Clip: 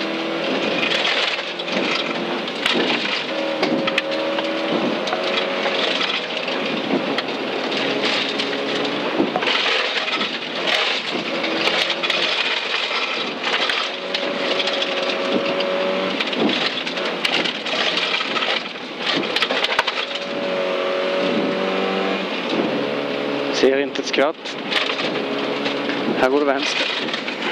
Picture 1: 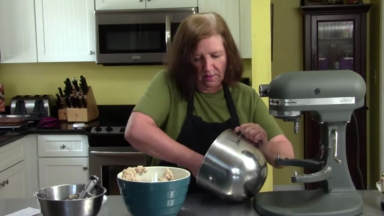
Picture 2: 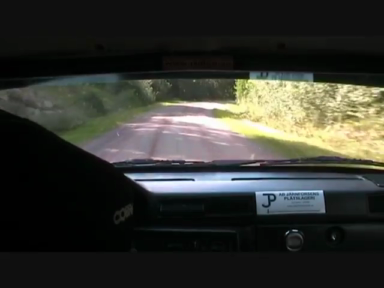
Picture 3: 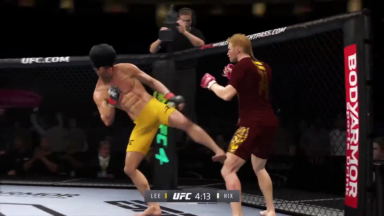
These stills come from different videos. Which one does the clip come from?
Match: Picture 2